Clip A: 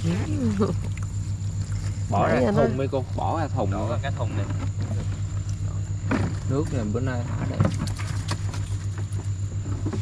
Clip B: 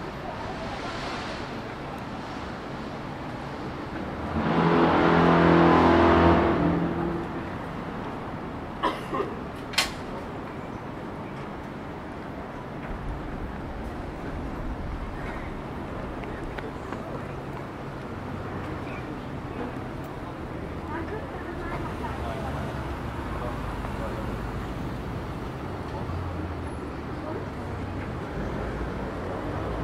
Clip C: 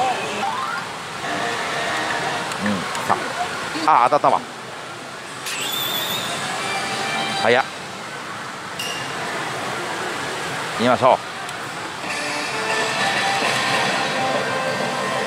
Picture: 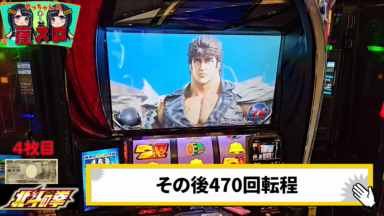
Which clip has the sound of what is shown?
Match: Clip C